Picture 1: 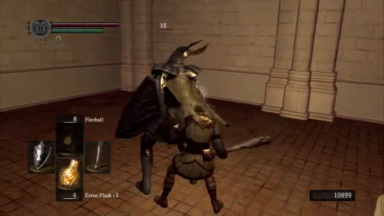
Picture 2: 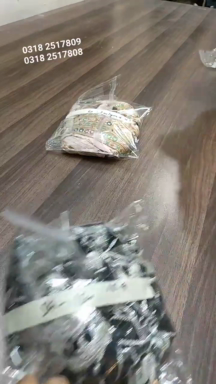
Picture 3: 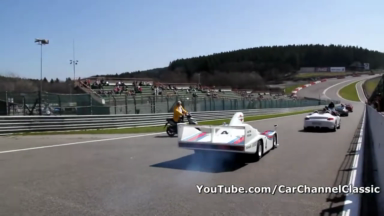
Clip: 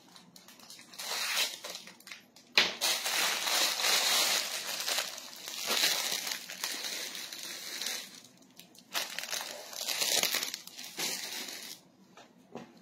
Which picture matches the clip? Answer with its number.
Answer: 2